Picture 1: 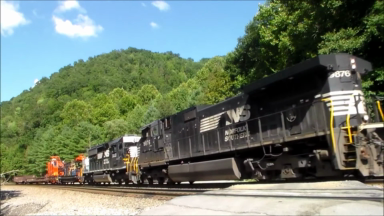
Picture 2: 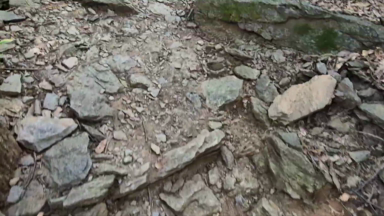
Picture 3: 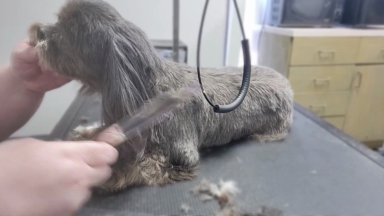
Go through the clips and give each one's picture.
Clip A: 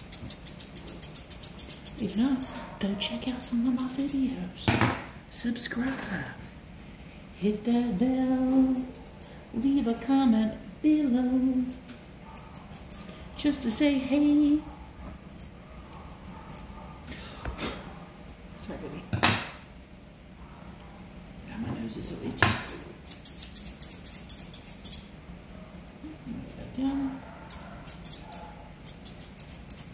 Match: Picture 3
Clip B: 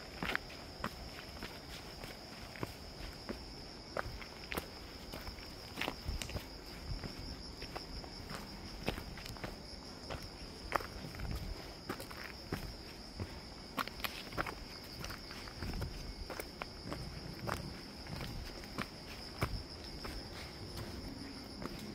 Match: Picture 2